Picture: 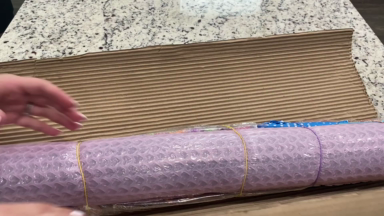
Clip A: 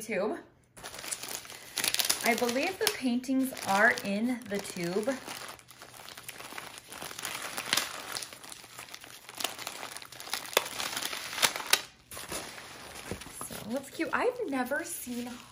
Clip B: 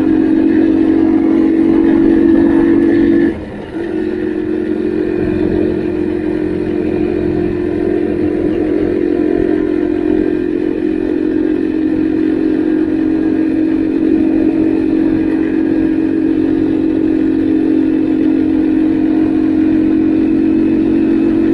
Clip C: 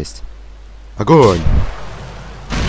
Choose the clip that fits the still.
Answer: A